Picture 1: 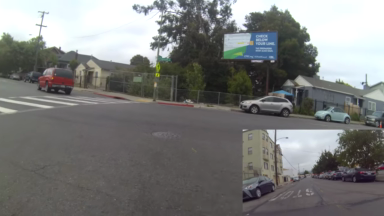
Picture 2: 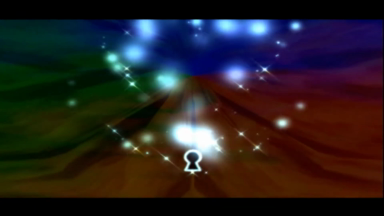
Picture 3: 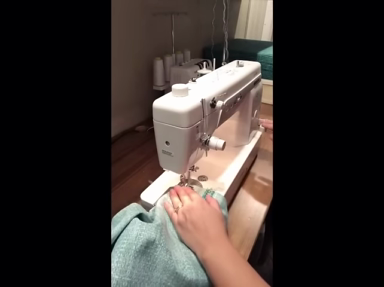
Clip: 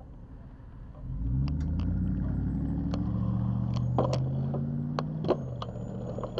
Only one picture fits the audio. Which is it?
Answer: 1